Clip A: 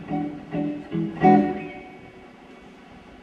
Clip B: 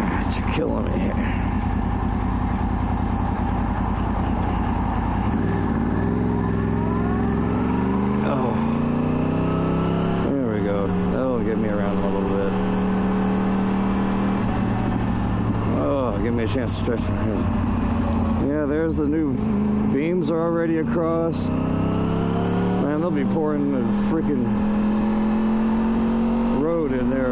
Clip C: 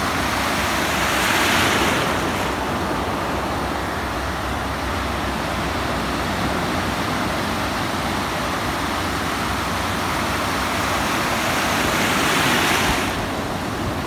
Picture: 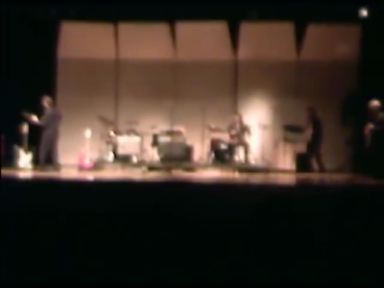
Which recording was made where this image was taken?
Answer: A